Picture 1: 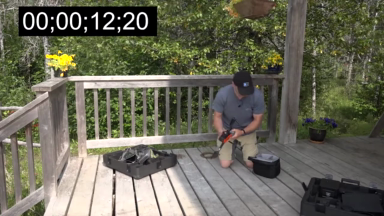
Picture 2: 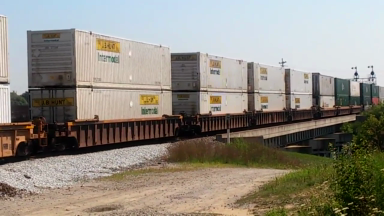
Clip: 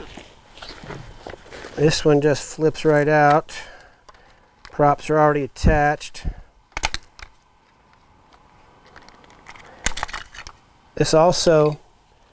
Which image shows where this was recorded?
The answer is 1